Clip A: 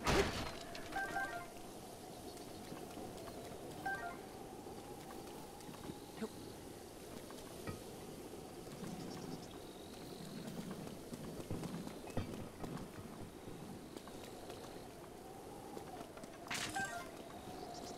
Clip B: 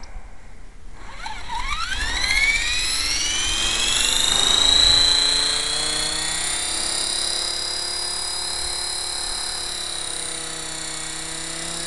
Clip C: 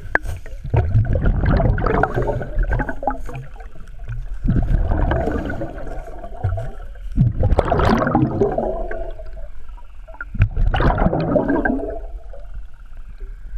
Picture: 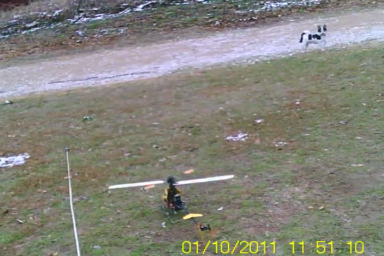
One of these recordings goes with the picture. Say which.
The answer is B